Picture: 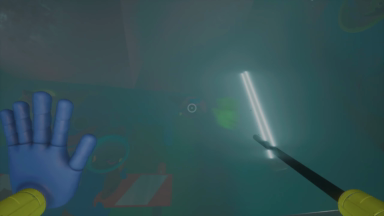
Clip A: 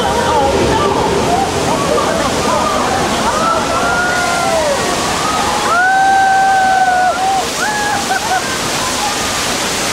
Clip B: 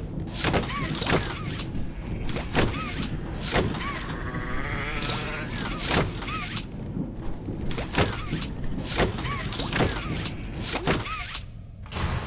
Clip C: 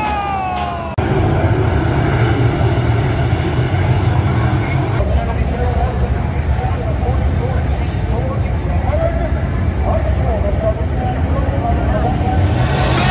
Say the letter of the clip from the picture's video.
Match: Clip B